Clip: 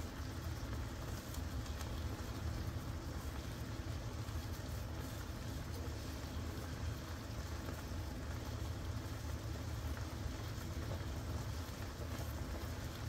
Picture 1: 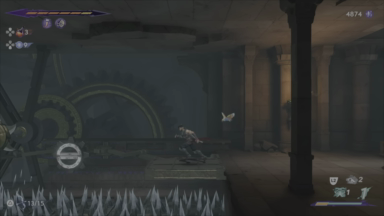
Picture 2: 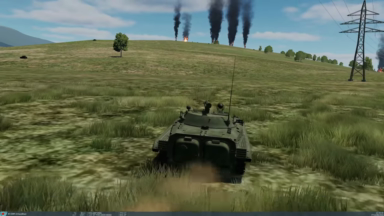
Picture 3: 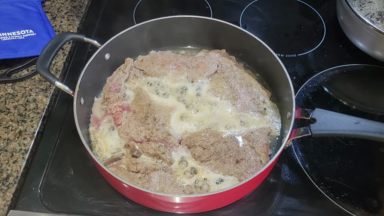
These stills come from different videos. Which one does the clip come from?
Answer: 3